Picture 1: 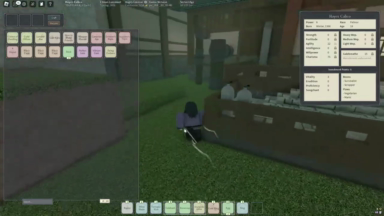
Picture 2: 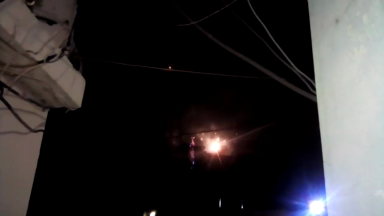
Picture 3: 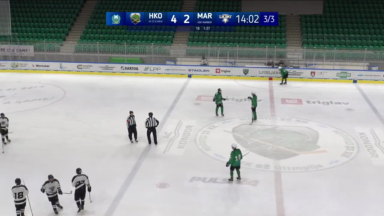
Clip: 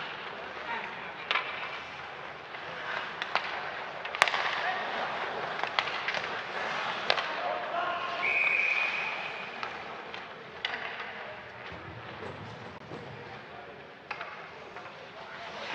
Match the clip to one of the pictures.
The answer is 3